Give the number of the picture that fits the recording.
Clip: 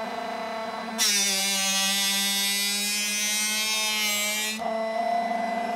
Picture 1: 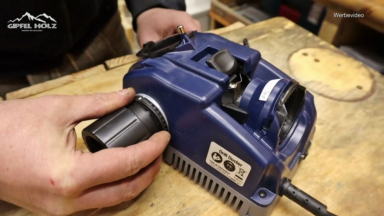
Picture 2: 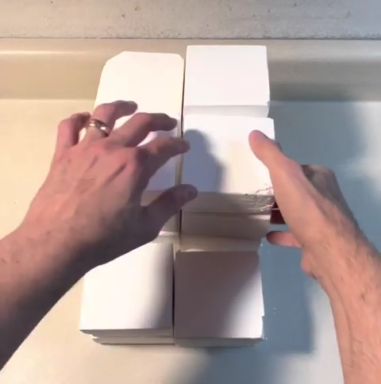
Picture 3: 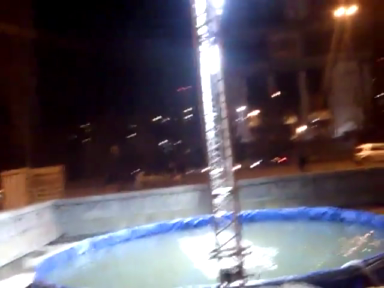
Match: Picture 1